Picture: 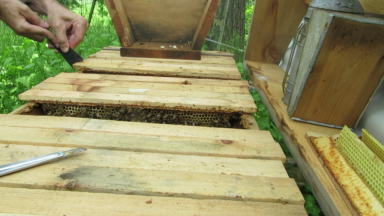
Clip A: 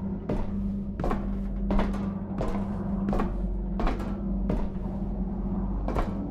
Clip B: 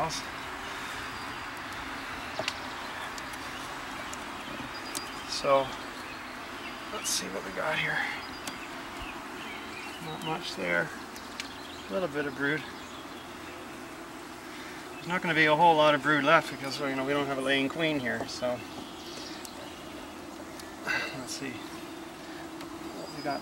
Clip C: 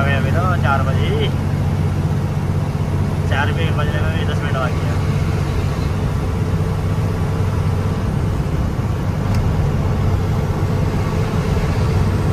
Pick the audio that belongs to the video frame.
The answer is B